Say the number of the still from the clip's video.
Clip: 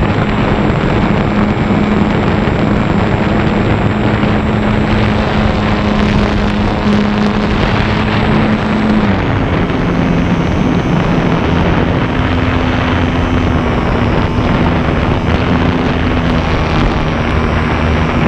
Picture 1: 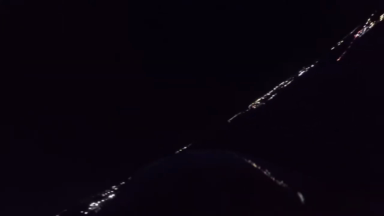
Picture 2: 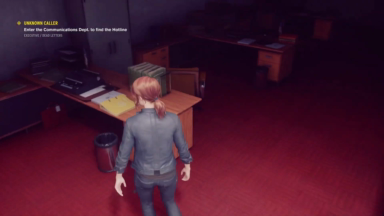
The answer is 1